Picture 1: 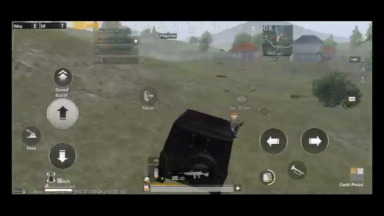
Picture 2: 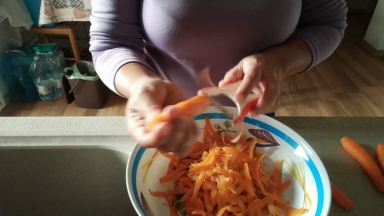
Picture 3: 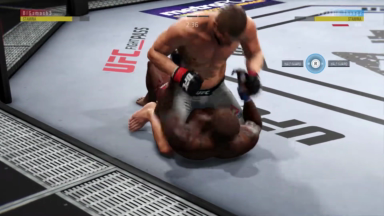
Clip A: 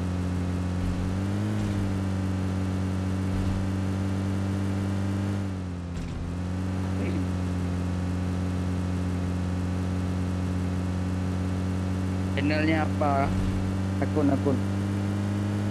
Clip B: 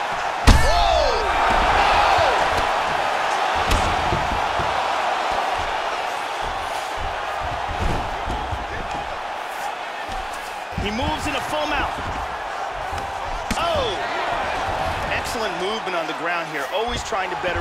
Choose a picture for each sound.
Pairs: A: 1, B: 3